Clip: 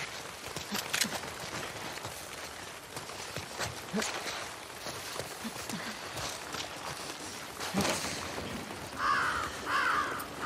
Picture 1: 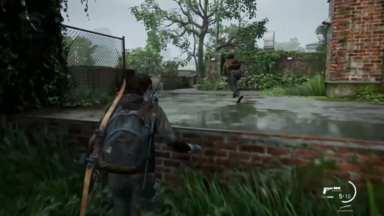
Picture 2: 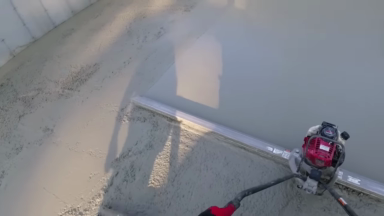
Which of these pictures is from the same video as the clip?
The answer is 1